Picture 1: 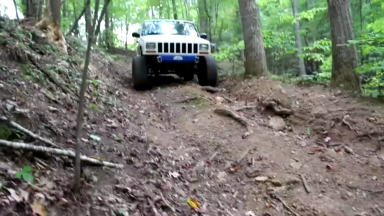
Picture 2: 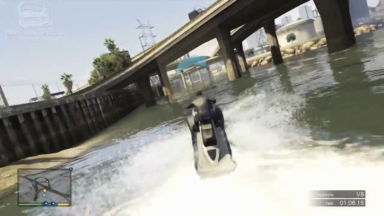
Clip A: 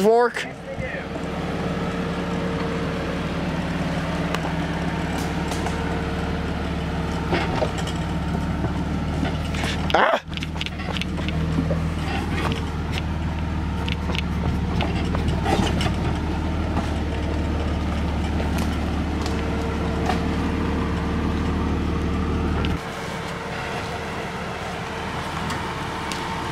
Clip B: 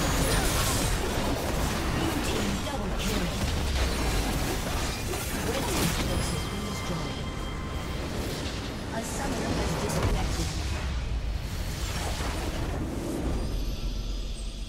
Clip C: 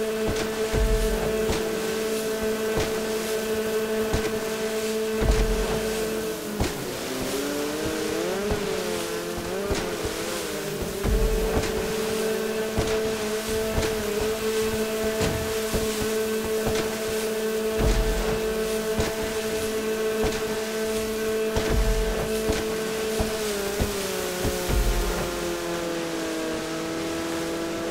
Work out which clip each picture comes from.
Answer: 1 A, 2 C